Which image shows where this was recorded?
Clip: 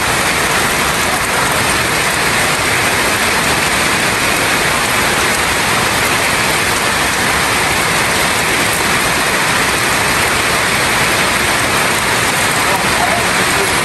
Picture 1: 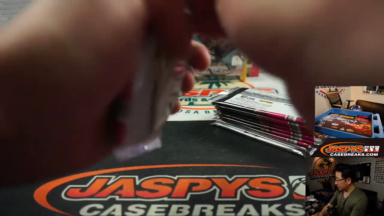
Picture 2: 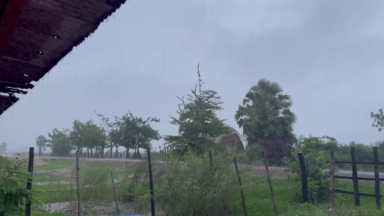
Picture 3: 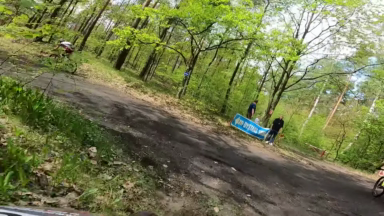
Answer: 2